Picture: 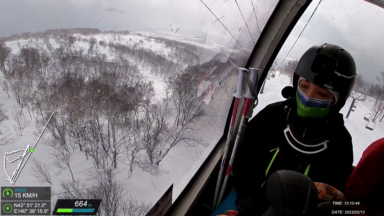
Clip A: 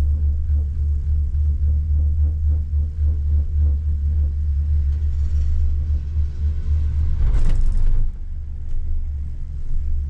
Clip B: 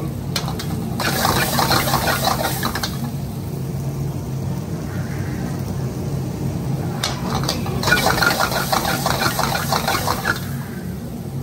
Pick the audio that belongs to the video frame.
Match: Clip A